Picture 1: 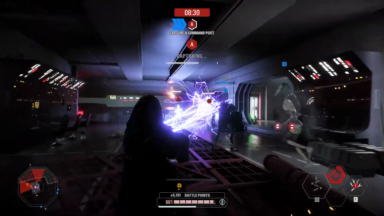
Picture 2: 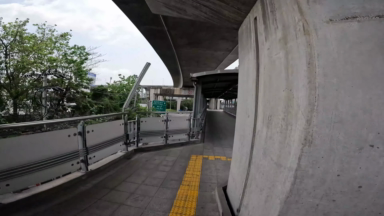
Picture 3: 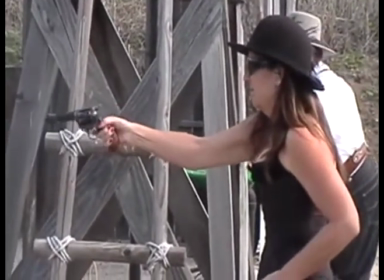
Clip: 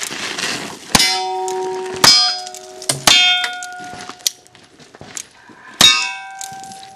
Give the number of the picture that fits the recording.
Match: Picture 3